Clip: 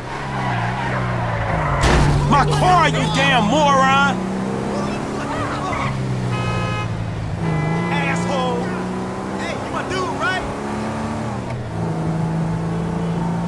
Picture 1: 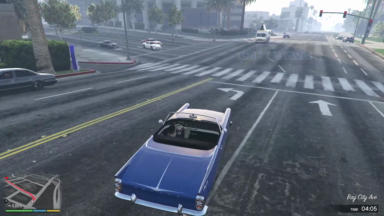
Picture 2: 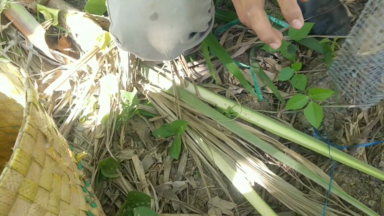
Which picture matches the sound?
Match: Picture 1